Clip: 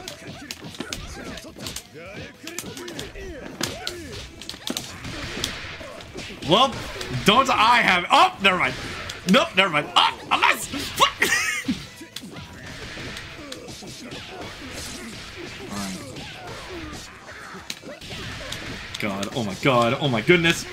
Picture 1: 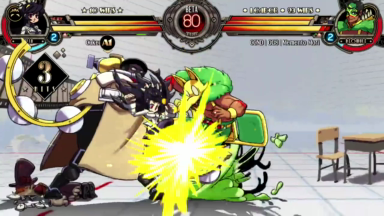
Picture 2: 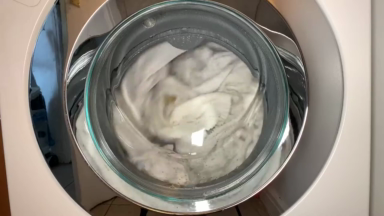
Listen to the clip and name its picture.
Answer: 1